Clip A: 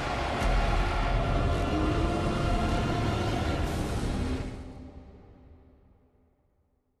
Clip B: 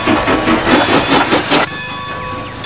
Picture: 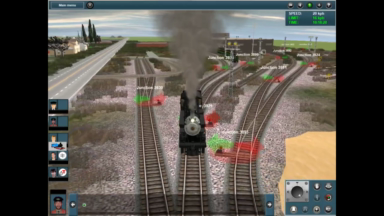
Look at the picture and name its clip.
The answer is B